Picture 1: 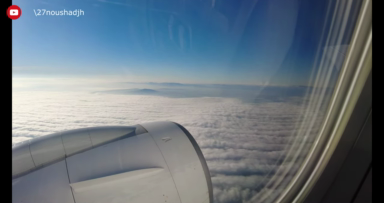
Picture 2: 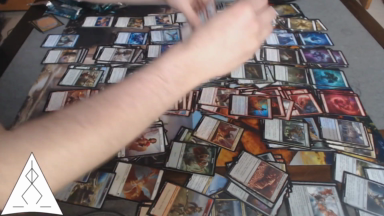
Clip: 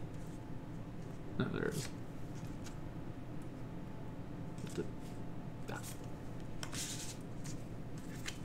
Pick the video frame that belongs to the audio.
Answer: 2